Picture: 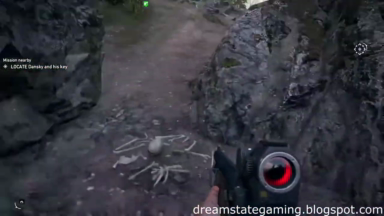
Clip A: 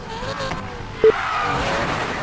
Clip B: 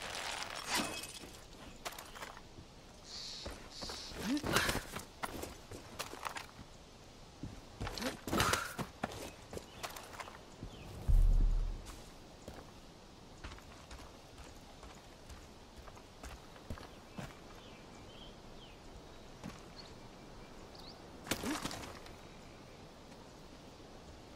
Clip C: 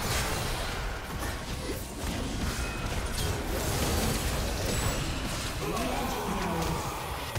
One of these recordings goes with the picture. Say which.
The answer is B